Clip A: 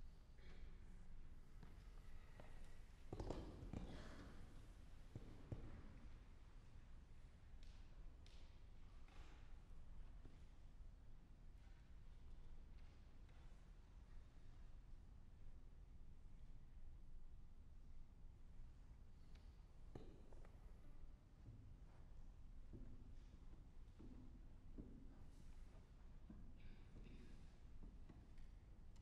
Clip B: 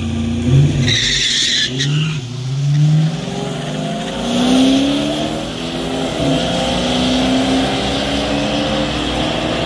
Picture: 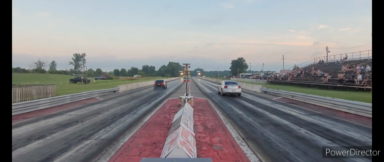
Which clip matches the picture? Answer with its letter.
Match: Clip B